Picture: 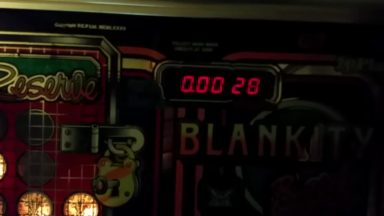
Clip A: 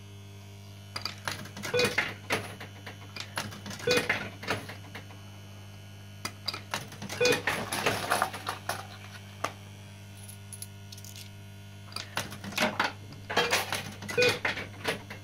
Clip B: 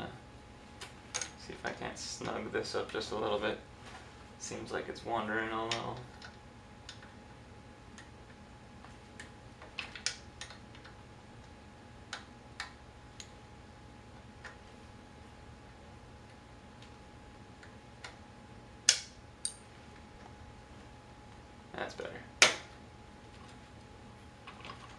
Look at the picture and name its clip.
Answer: A